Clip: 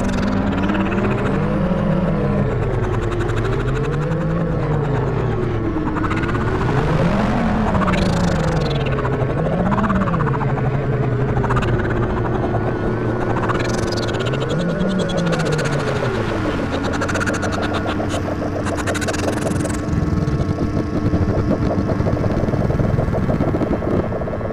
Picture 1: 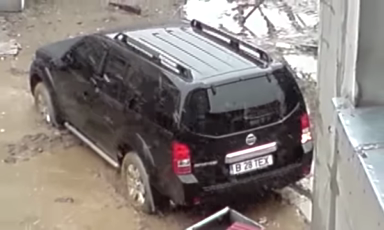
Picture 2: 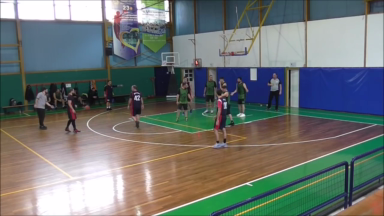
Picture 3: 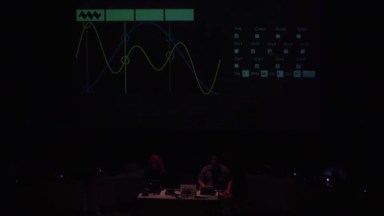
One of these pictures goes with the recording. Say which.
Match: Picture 3